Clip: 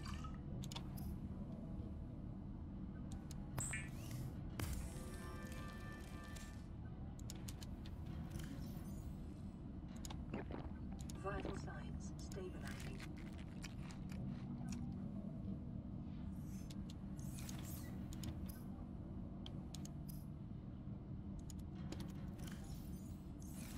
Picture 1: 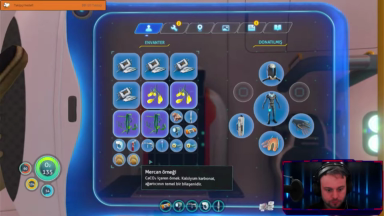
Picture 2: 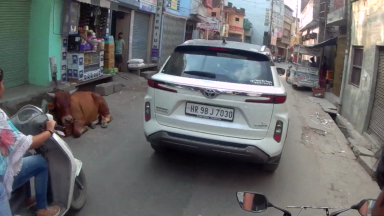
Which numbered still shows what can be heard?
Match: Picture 1